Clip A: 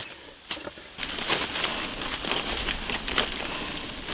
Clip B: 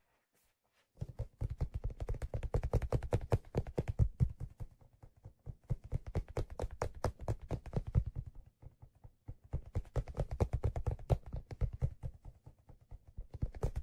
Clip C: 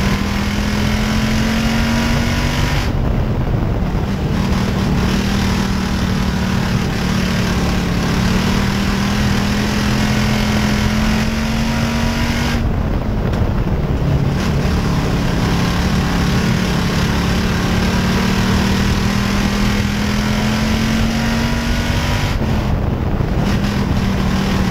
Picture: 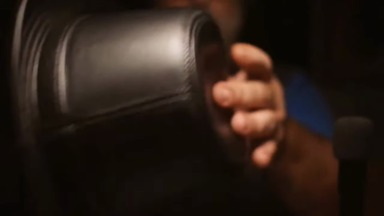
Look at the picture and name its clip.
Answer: B